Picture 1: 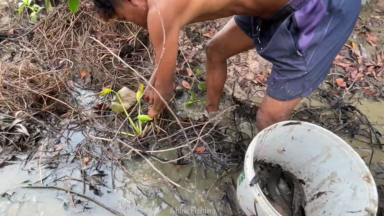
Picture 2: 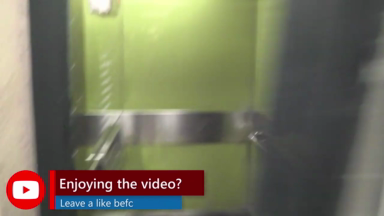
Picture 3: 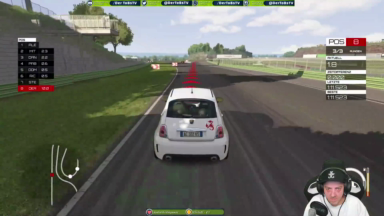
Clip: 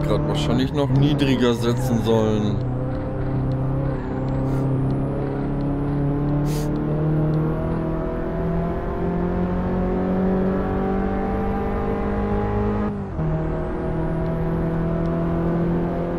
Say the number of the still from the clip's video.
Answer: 3